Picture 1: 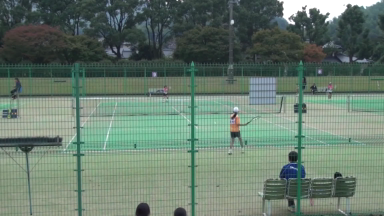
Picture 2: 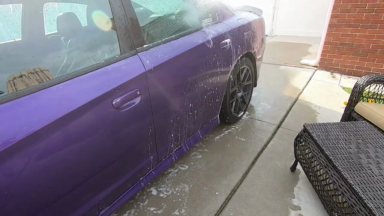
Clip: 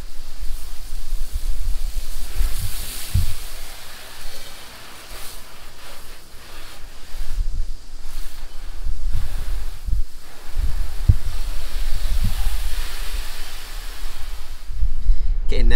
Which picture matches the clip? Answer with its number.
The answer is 2